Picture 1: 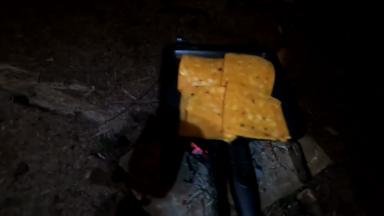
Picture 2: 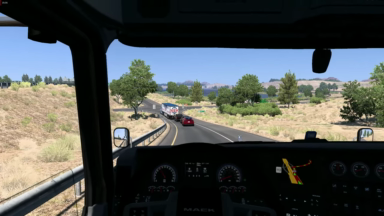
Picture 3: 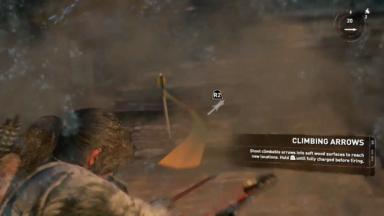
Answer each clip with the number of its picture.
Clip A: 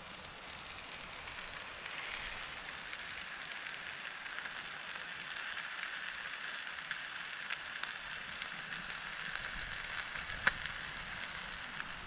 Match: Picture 1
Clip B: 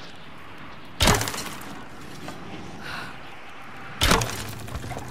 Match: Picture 3